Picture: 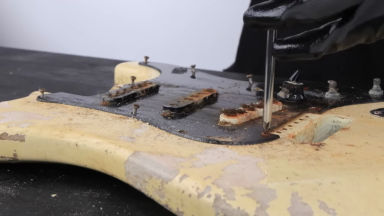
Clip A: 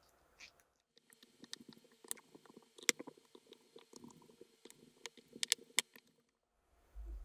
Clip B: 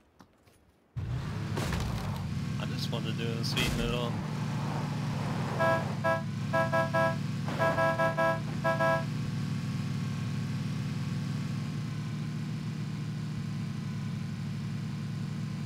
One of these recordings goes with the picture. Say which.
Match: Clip A